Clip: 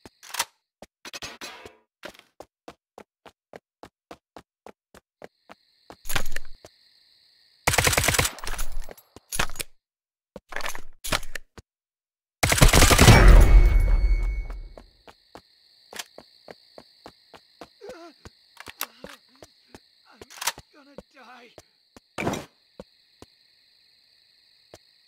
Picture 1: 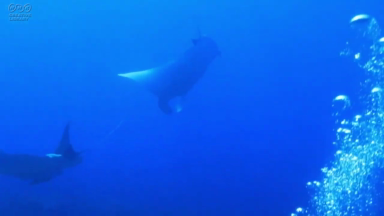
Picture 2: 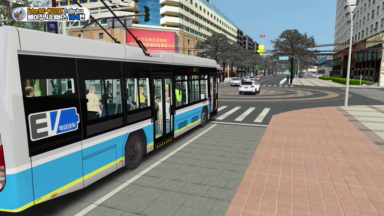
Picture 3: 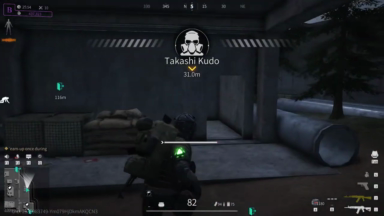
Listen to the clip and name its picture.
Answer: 3